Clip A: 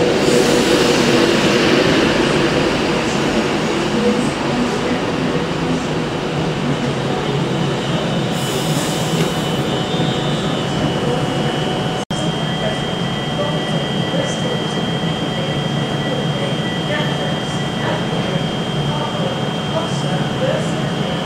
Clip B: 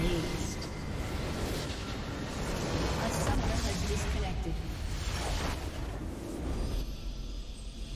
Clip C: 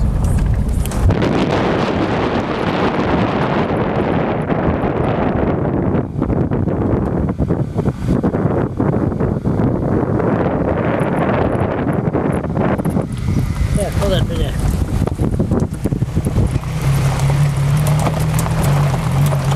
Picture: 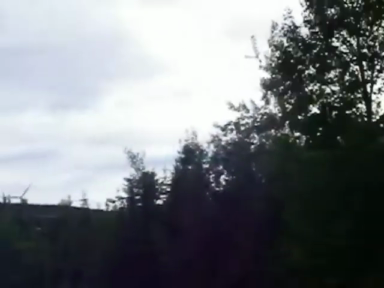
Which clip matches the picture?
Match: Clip C